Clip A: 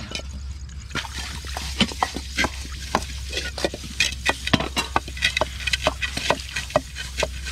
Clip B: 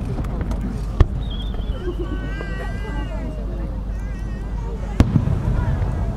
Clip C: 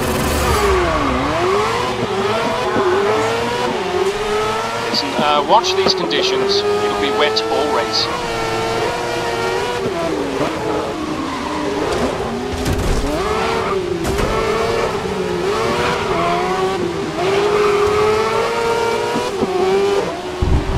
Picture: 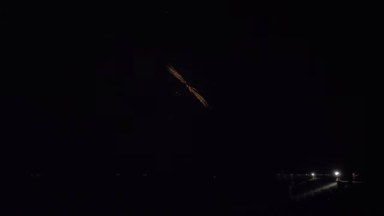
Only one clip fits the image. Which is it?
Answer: B